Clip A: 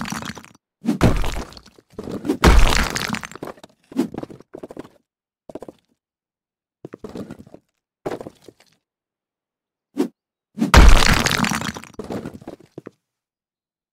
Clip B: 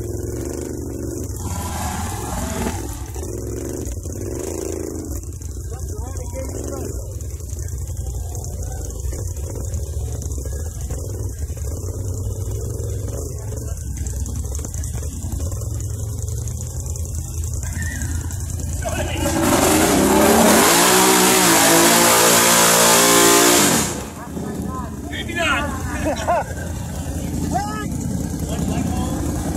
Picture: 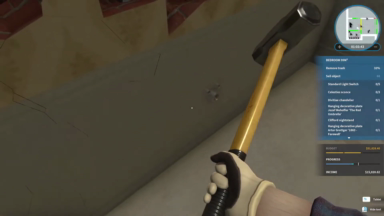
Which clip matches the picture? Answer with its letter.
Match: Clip A